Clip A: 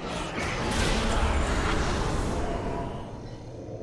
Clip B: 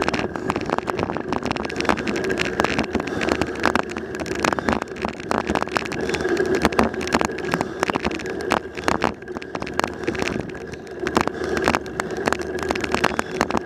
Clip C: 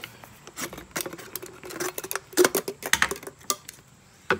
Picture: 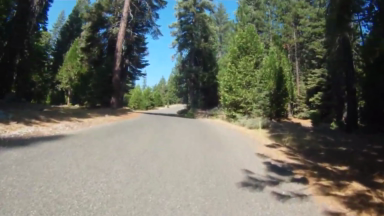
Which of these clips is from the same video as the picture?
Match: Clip B